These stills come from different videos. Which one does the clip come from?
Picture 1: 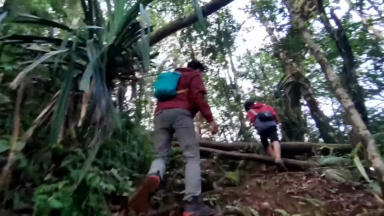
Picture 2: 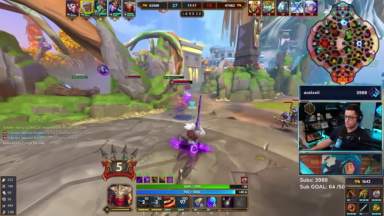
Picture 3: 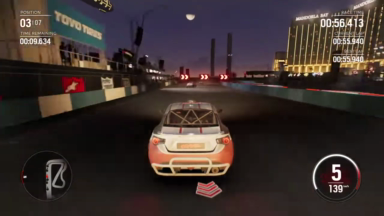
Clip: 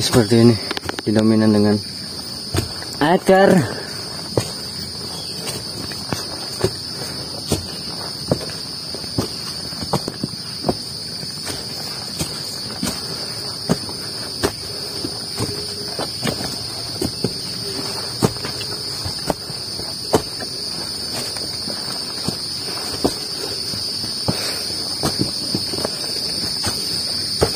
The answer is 1